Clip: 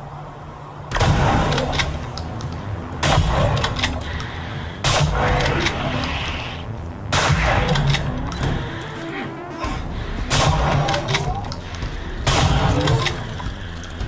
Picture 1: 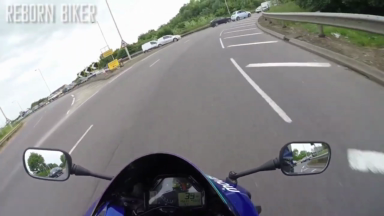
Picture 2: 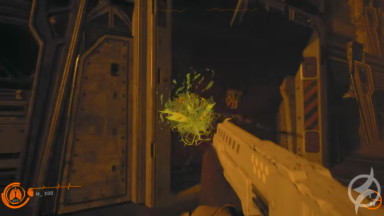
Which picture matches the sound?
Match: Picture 2